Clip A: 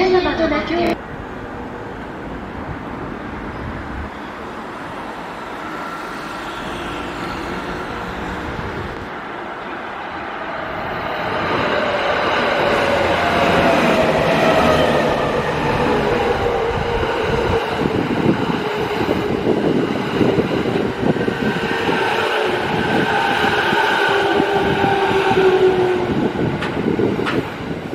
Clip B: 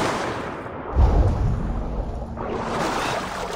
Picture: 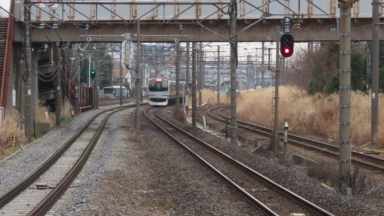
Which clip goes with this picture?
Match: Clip A